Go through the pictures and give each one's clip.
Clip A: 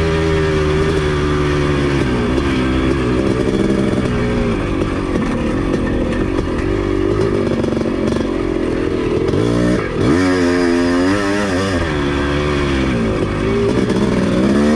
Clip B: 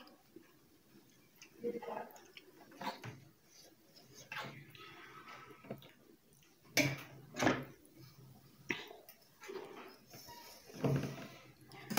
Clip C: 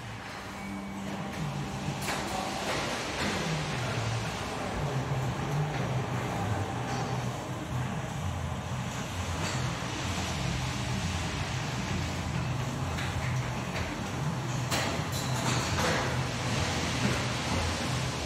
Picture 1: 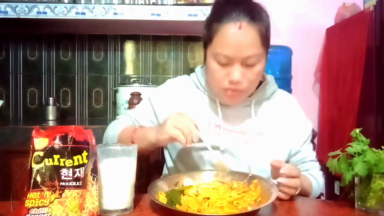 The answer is B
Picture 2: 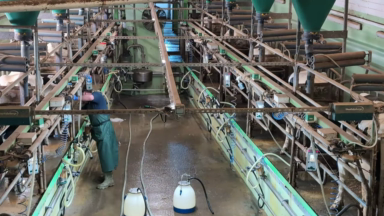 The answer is C